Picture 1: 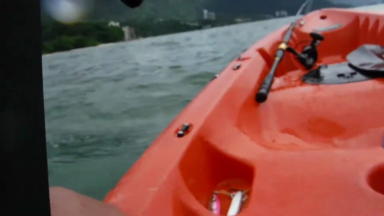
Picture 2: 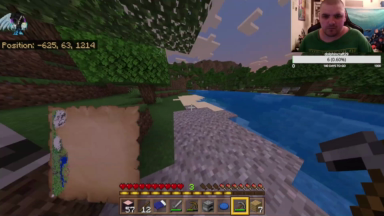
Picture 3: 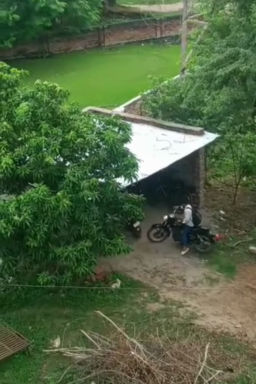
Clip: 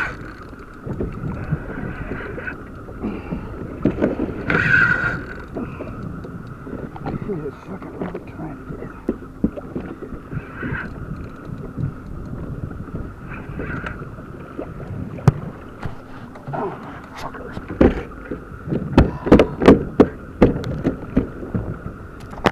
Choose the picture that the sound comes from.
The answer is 1